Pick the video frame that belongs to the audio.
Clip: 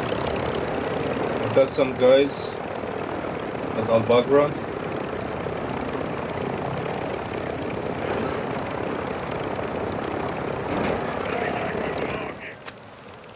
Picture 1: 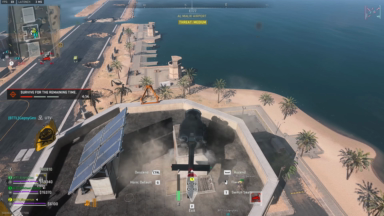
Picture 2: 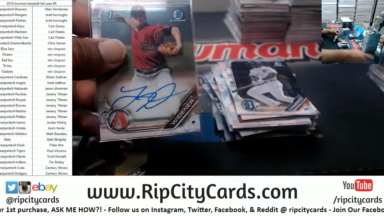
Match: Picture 1